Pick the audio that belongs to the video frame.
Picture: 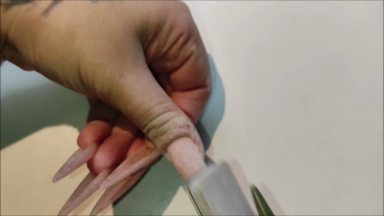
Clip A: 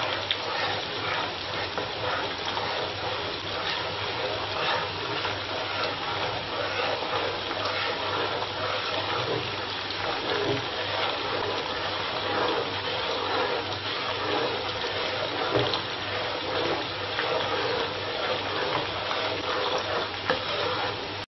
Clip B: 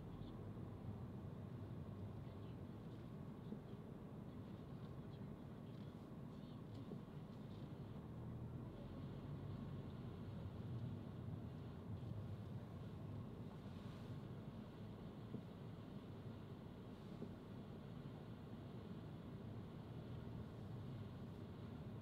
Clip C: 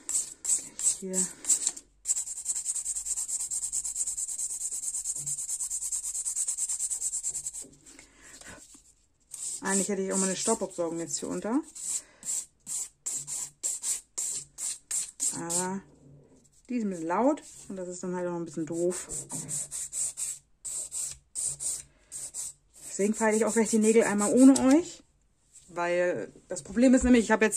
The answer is C